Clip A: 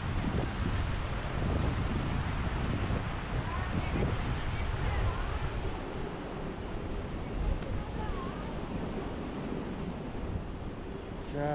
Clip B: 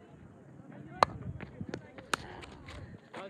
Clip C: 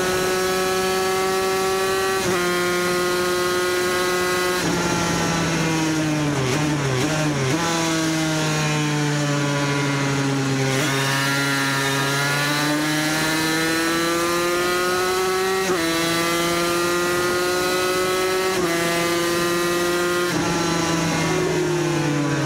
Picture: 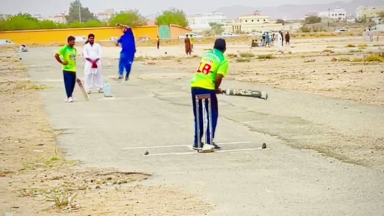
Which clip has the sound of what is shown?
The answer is B